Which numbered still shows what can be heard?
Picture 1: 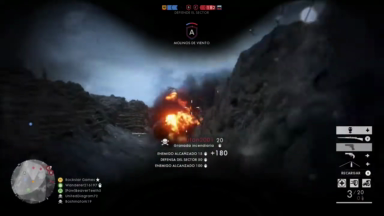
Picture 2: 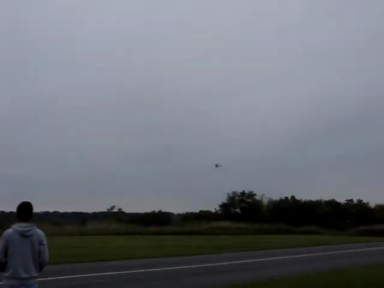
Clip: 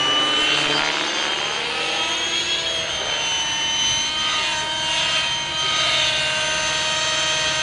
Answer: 2